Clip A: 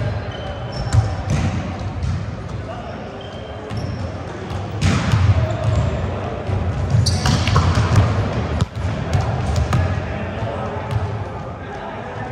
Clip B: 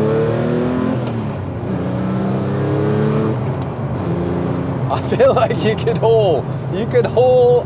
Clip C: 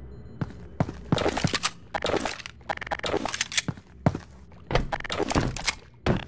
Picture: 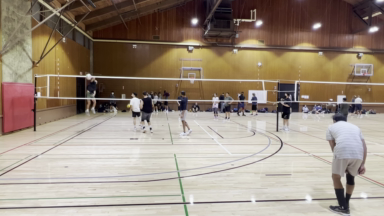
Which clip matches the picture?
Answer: A